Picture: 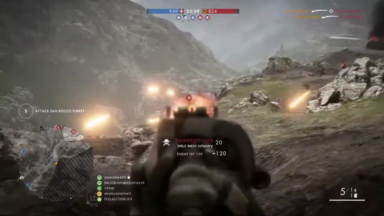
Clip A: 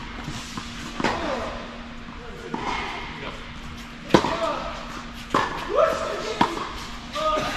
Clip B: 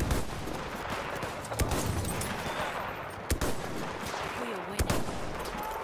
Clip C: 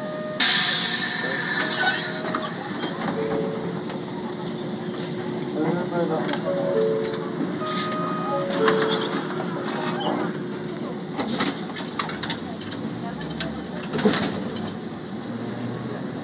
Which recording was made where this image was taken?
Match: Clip B